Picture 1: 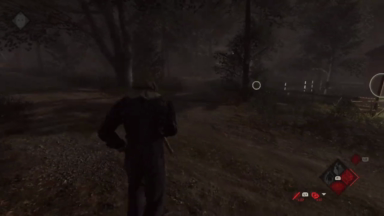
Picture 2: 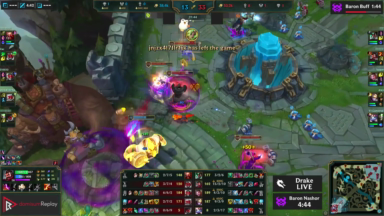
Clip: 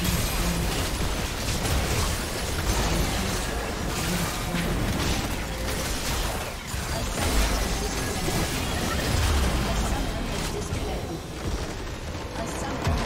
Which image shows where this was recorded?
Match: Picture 2